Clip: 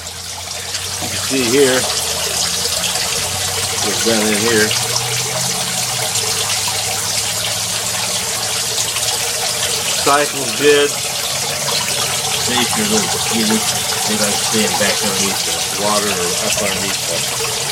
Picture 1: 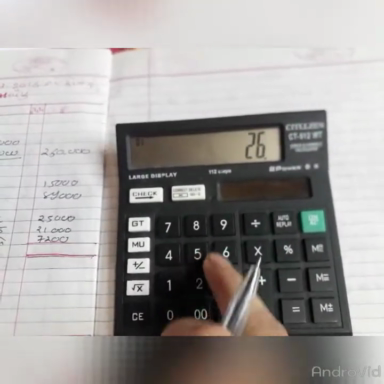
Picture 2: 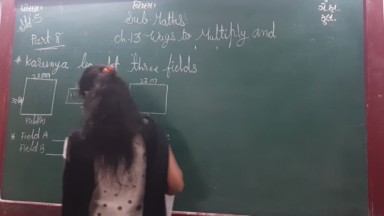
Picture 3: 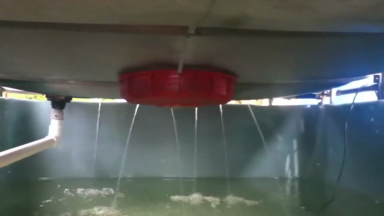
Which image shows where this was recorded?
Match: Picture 3